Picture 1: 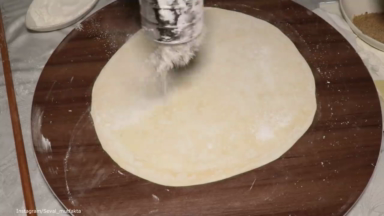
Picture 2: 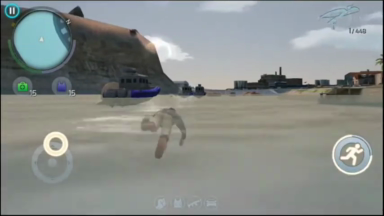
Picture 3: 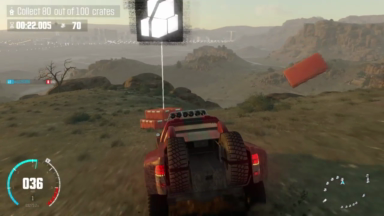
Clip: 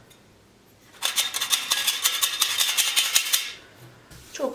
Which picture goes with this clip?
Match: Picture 1